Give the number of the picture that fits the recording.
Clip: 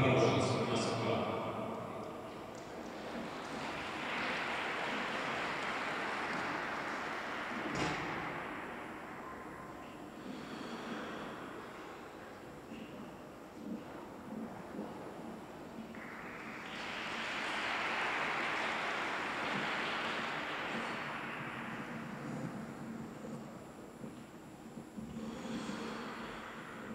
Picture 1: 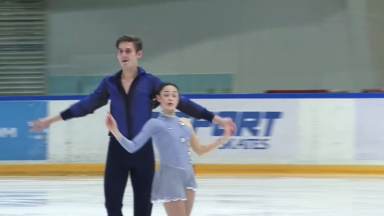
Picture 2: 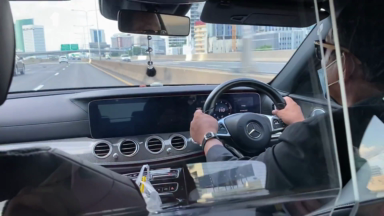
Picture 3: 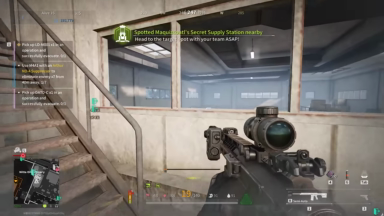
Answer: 1